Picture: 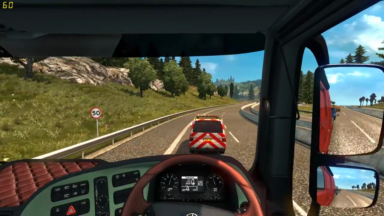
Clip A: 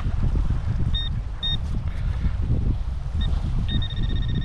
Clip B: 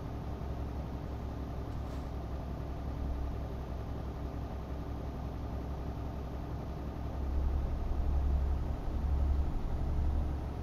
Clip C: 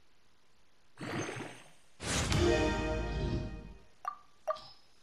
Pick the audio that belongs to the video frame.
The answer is B